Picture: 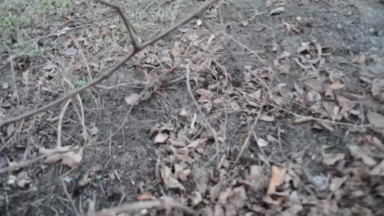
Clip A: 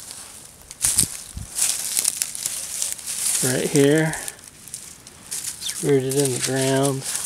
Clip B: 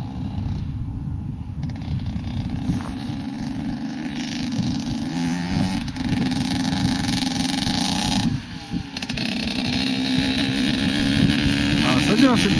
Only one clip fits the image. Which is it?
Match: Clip A